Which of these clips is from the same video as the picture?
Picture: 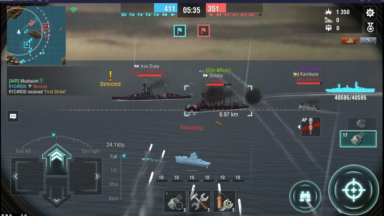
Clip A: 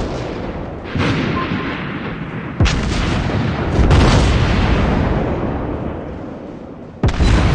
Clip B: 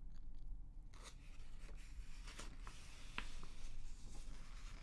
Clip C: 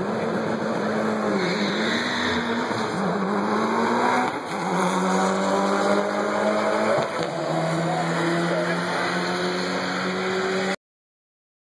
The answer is A